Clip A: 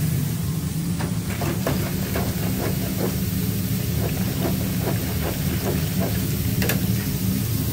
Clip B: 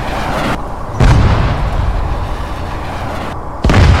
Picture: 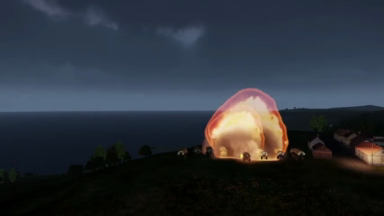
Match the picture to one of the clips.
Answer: B